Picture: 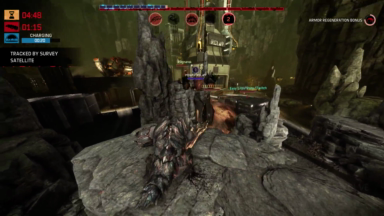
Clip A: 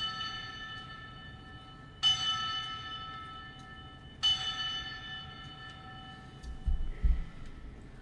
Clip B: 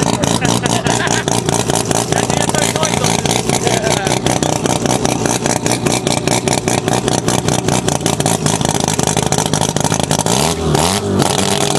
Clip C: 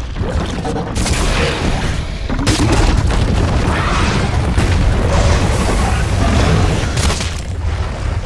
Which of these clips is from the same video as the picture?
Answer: C